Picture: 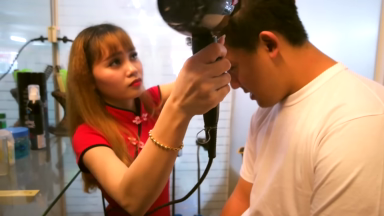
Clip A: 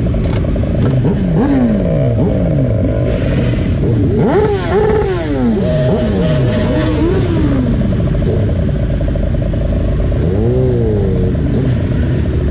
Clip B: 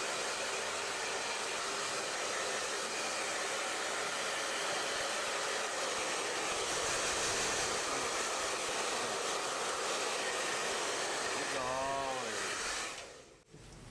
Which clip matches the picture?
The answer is B